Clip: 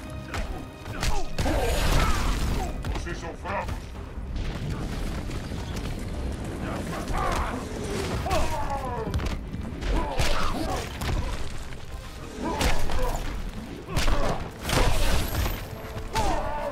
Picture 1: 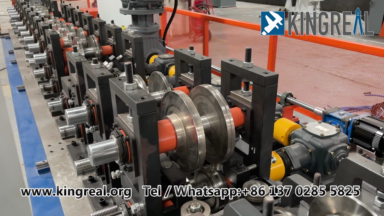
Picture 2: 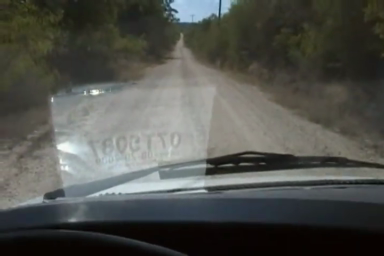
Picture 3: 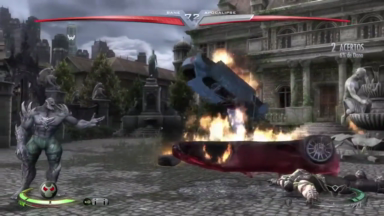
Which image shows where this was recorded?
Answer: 3